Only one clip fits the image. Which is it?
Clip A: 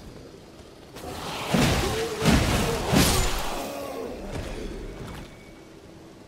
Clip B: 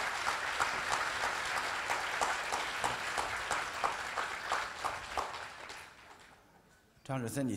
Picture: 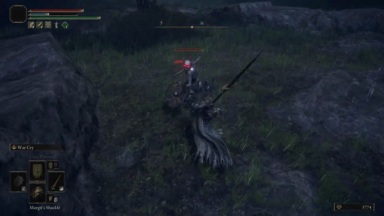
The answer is A